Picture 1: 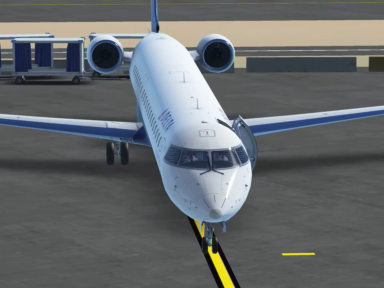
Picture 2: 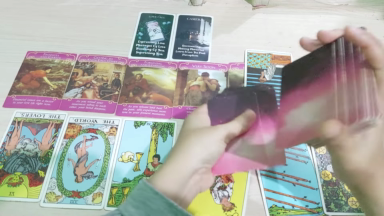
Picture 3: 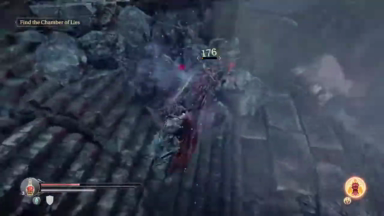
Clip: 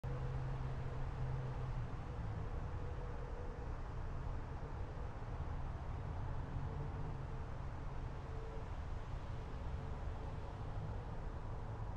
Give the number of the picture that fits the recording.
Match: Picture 1